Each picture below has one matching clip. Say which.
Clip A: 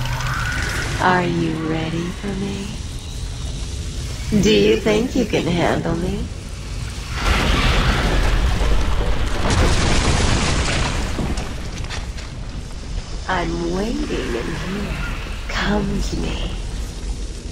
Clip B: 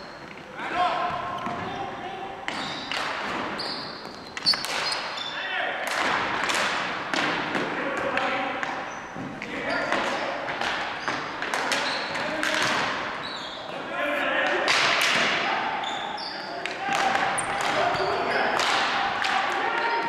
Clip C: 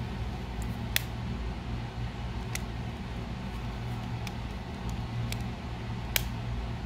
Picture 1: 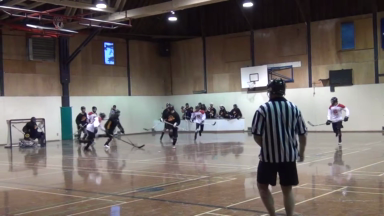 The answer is B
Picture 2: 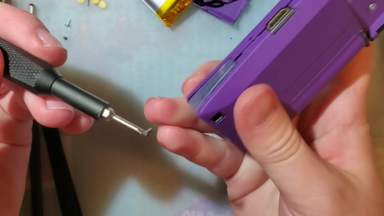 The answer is C